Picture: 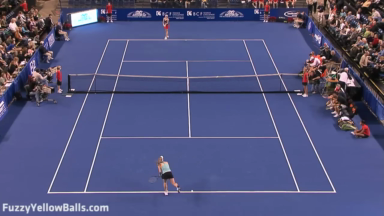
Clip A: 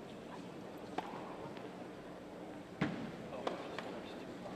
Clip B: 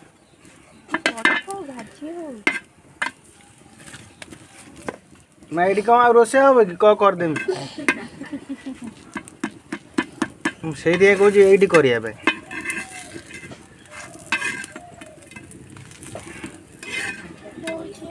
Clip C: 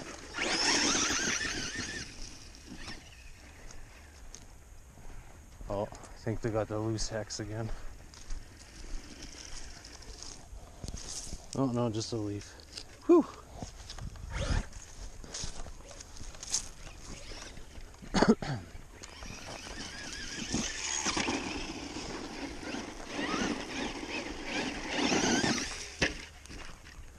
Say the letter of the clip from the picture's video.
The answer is A